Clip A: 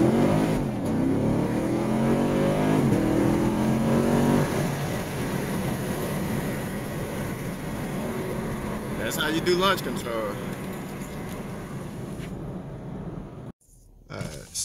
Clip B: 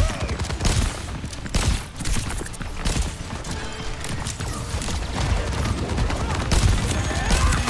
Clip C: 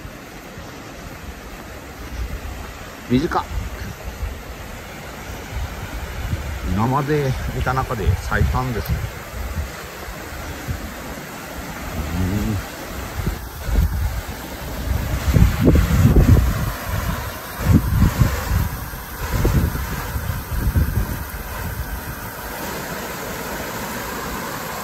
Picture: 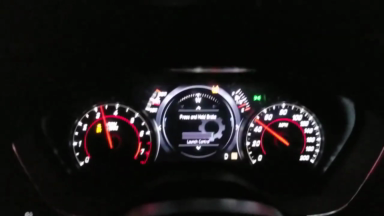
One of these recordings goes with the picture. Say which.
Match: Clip A